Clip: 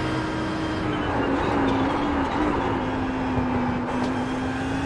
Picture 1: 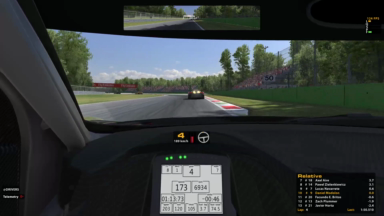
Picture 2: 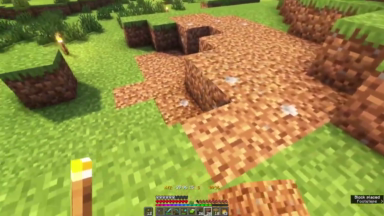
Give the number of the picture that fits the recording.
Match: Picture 1